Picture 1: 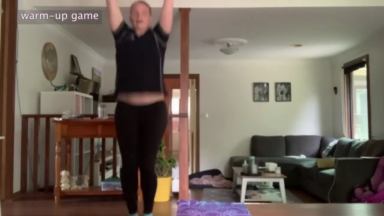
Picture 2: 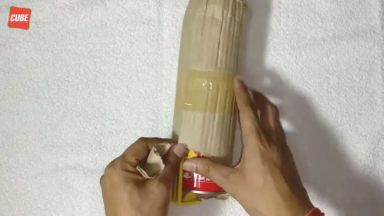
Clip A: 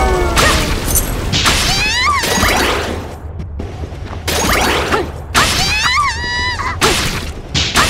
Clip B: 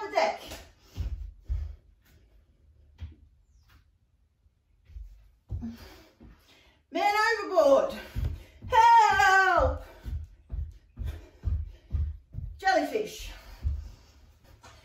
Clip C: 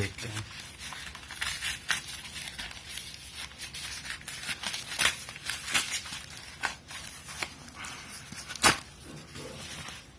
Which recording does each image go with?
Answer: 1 B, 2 C